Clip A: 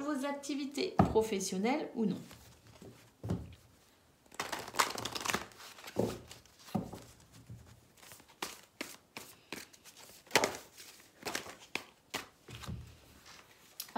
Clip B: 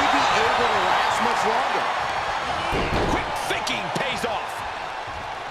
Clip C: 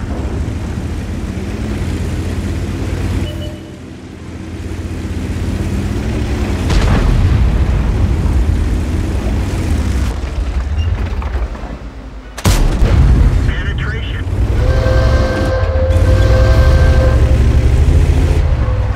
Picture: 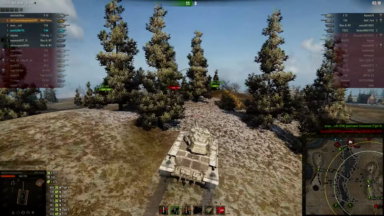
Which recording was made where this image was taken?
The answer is C